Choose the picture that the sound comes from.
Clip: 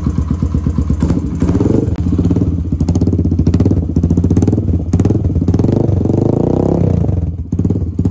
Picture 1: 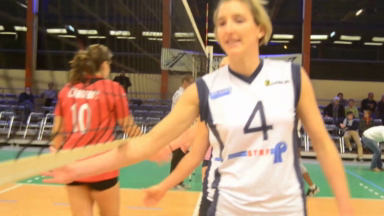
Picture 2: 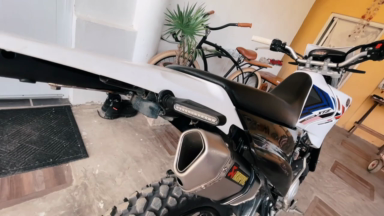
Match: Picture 2